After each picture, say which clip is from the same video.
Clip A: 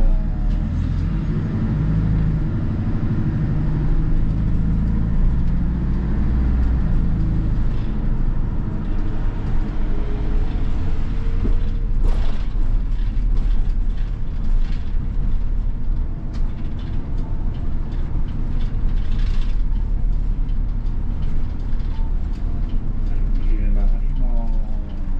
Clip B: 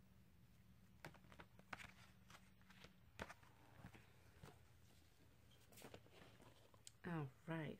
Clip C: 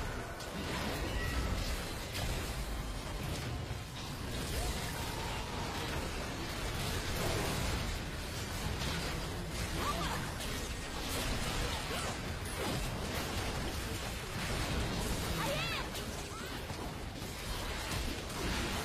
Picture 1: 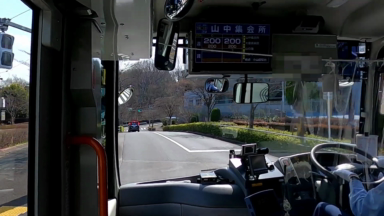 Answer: A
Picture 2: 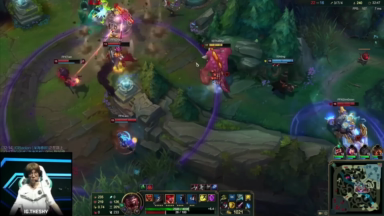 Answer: C